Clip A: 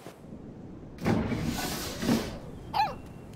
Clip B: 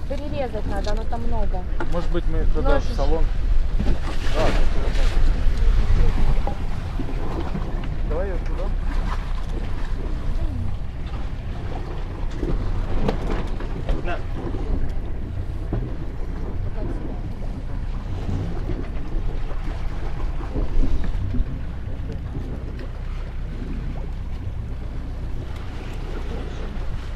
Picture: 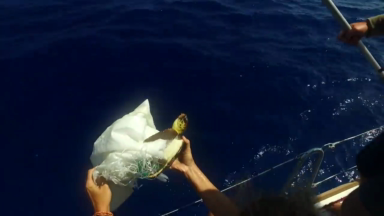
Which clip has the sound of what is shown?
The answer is B